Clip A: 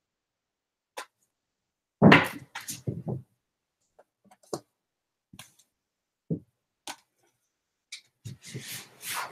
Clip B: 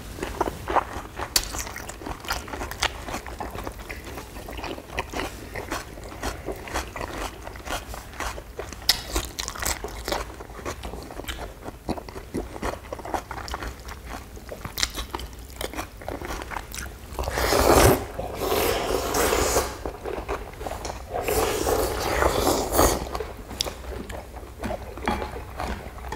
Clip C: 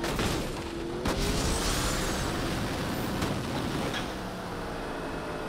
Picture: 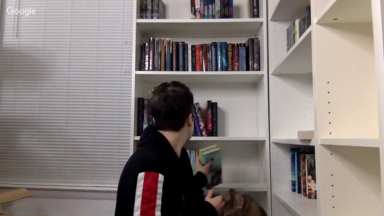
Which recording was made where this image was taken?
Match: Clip A